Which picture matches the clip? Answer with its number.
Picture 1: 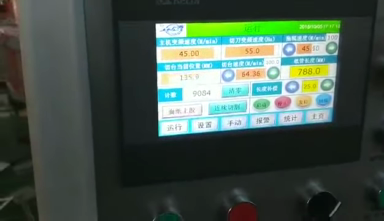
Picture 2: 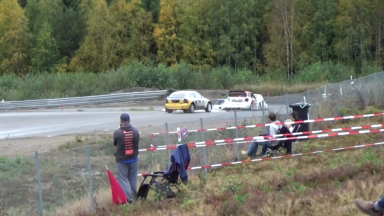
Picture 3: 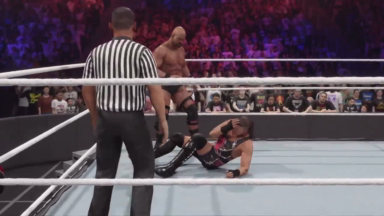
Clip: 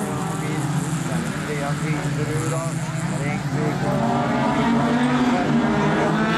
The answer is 2